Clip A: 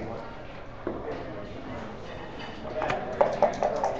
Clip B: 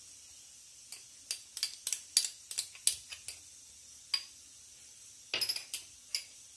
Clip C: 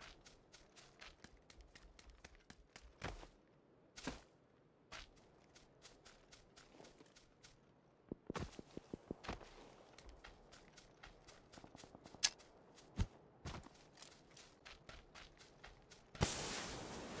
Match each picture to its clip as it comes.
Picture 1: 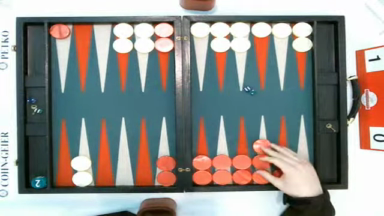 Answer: A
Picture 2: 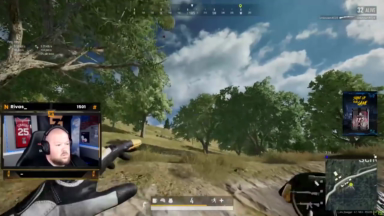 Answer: C